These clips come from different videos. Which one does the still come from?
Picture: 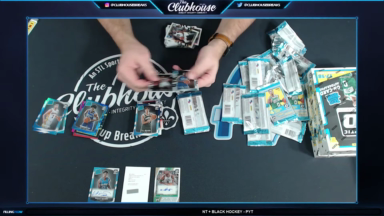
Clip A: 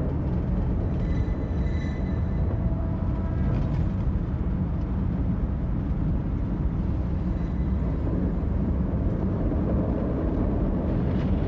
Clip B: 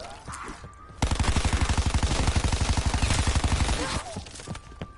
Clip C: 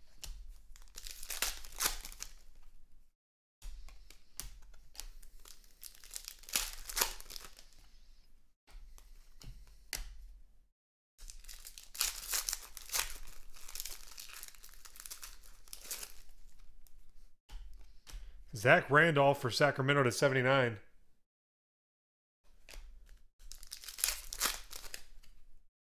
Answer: C